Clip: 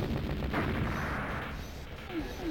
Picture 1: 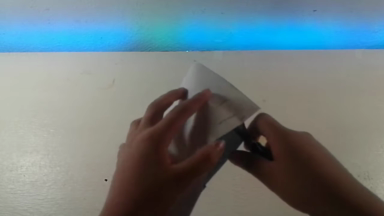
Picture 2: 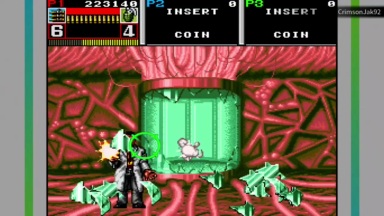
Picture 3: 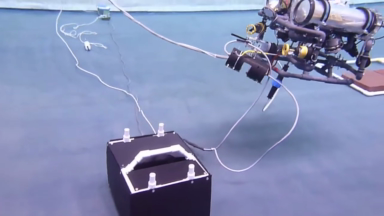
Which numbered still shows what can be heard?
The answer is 2